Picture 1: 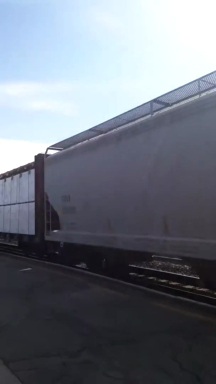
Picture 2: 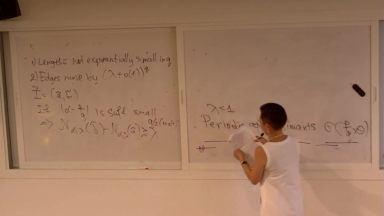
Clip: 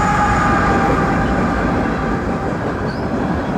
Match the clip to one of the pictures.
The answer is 1